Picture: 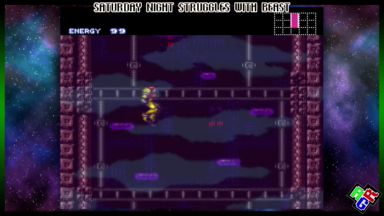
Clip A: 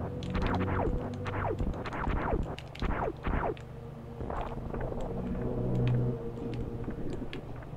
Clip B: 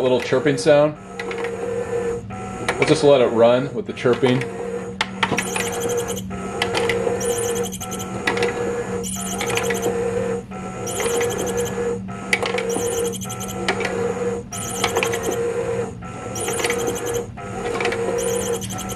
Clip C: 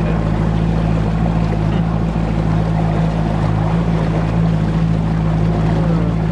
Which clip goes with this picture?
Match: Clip A